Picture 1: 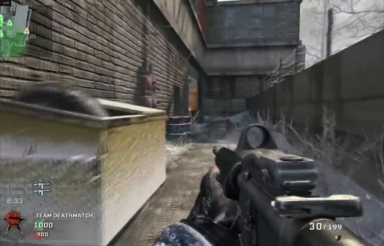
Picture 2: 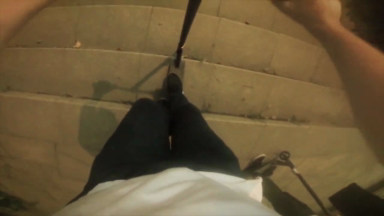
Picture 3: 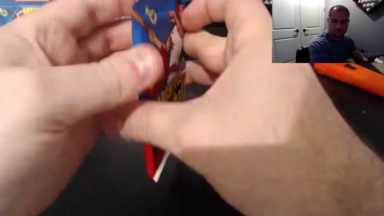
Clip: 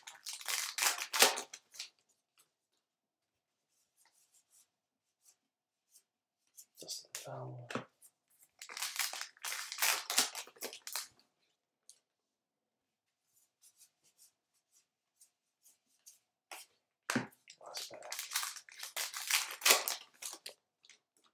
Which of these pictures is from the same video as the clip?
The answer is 3